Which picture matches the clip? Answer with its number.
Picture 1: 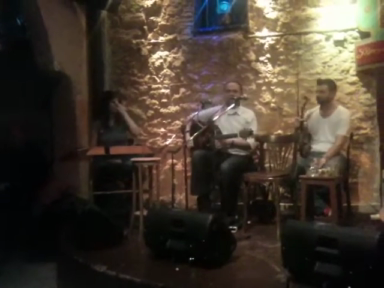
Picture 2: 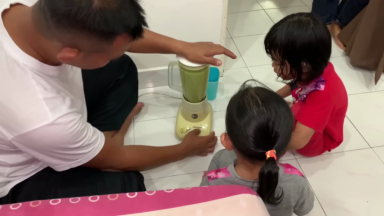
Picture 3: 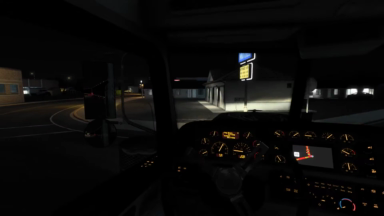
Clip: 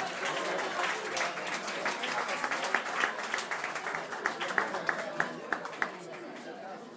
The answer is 1